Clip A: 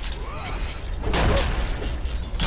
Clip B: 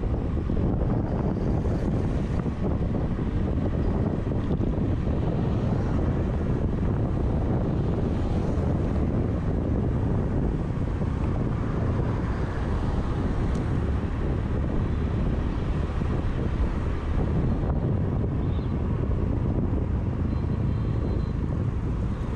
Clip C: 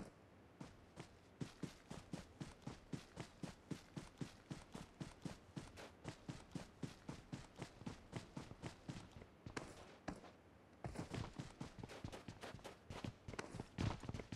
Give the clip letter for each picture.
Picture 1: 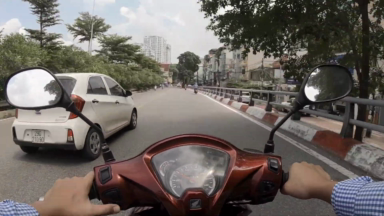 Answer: B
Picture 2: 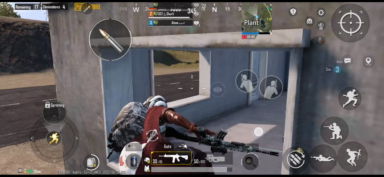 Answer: C